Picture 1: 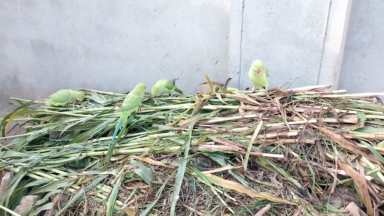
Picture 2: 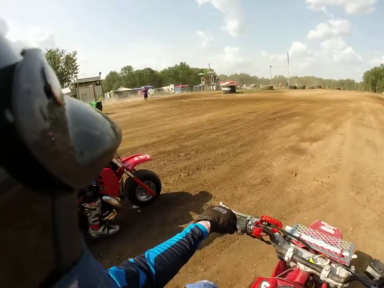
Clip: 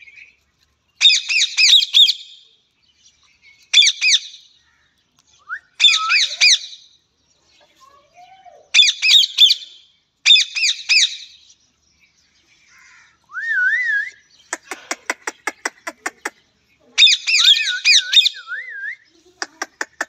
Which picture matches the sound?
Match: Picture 1